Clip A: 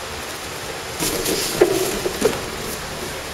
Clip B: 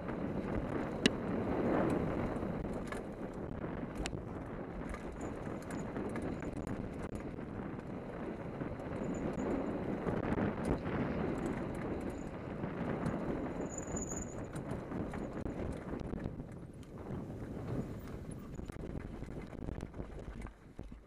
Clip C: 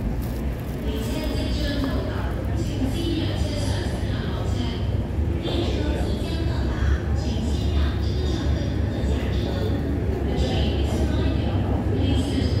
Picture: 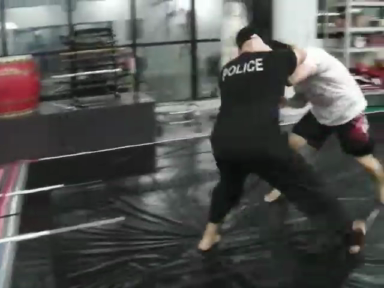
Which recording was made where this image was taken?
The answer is A